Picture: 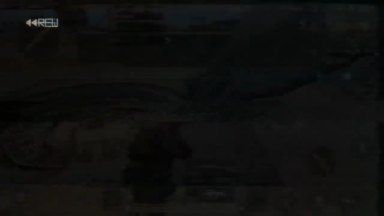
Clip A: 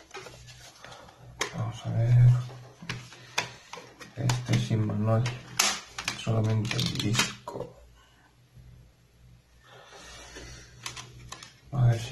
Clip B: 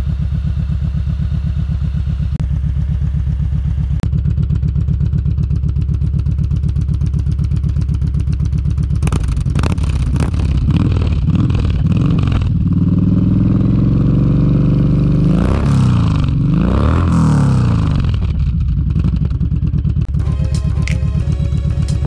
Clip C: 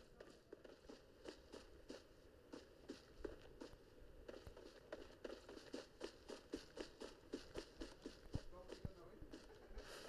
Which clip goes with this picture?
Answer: C